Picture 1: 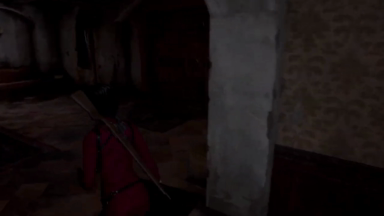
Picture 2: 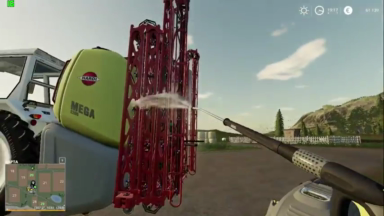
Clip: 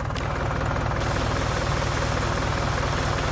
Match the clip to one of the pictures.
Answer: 2